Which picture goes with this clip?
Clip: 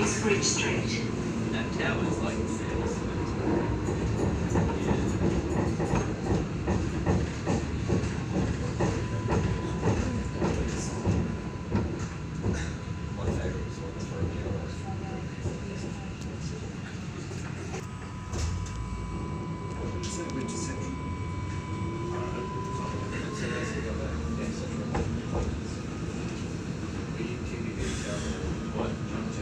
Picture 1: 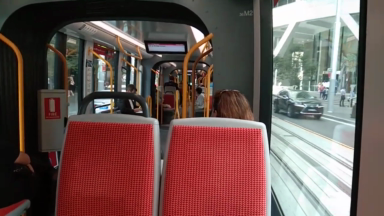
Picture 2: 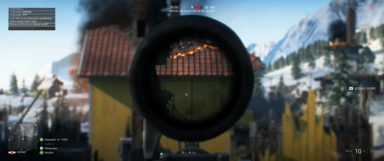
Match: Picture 1